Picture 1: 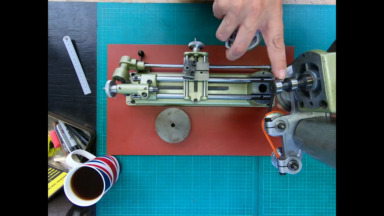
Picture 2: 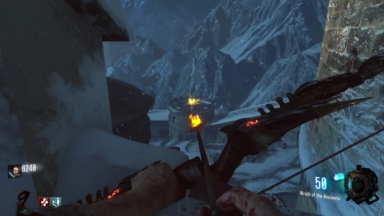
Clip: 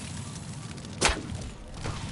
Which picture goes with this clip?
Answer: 2